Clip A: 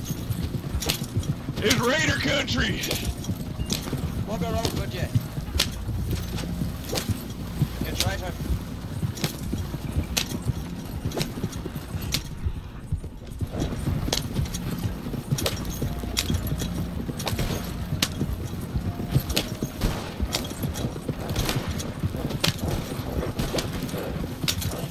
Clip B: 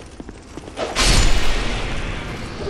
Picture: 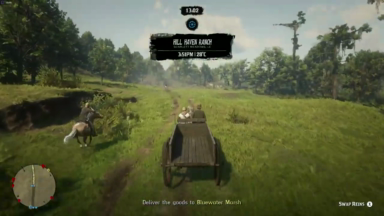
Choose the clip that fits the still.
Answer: A